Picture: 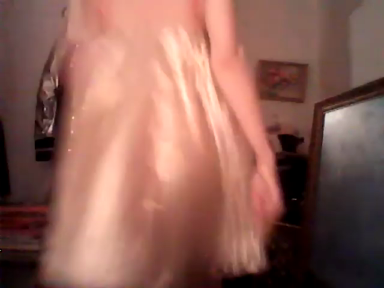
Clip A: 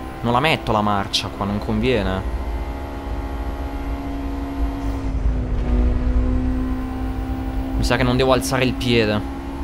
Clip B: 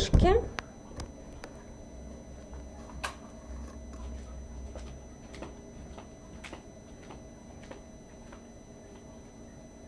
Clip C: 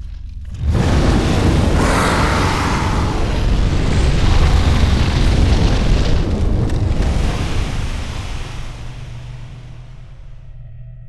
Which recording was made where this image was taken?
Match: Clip B